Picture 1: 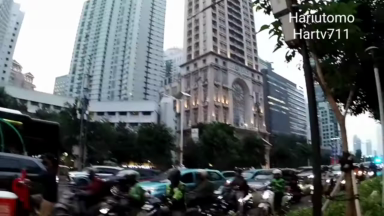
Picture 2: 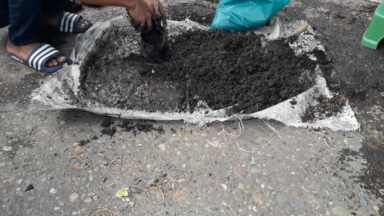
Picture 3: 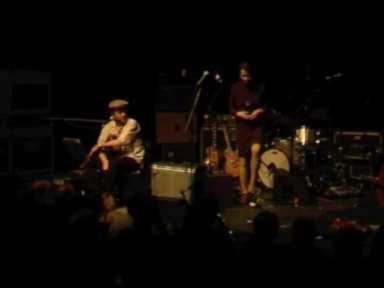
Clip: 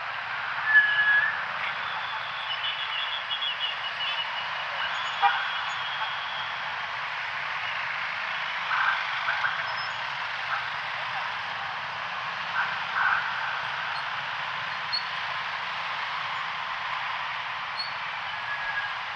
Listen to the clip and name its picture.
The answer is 1